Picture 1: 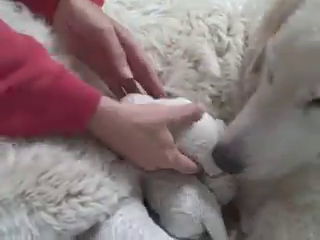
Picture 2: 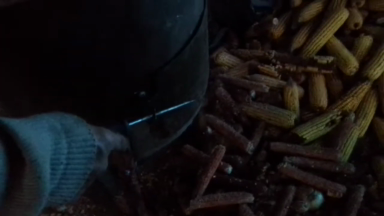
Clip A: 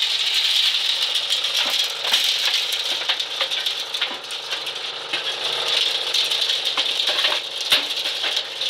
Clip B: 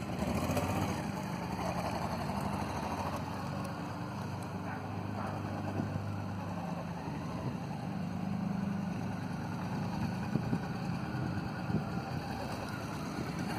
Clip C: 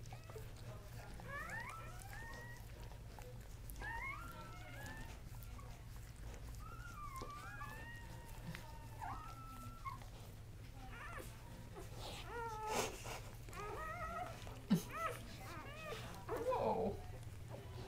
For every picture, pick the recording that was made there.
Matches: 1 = C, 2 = A